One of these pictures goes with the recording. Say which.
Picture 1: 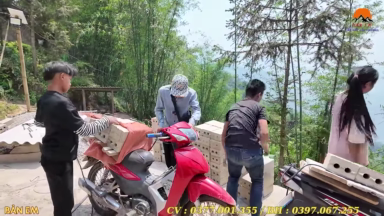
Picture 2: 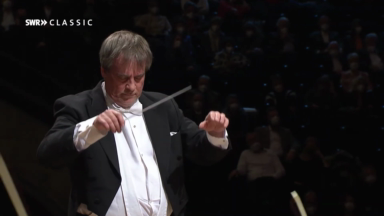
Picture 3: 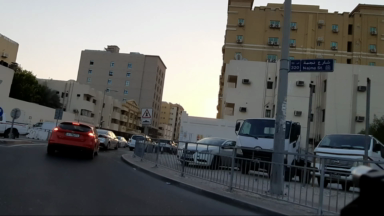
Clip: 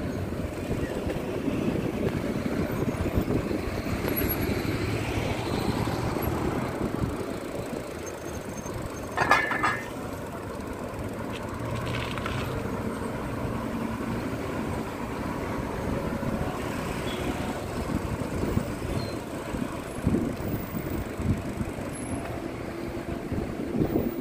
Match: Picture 3